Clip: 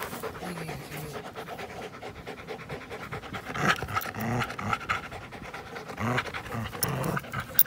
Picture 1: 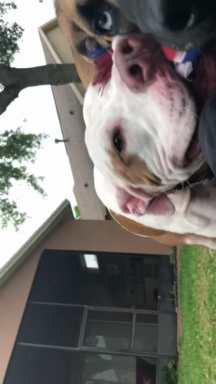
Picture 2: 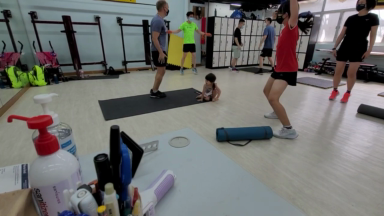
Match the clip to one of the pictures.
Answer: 1